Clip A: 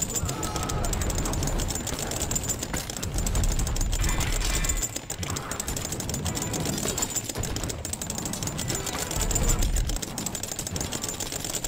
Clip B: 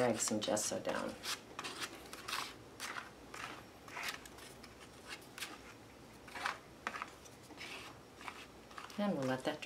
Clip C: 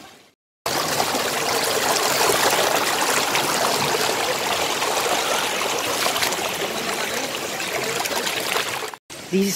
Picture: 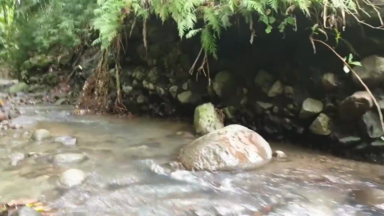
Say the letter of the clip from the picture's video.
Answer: C